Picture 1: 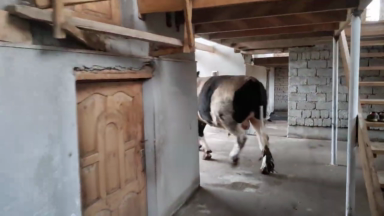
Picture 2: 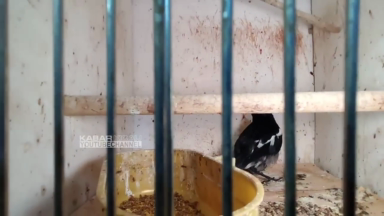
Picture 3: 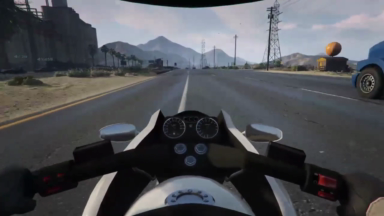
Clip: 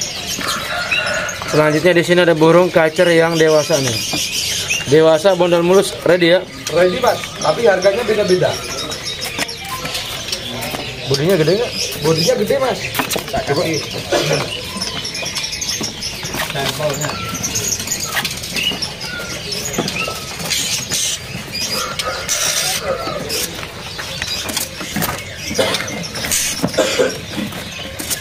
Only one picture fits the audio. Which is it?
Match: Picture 2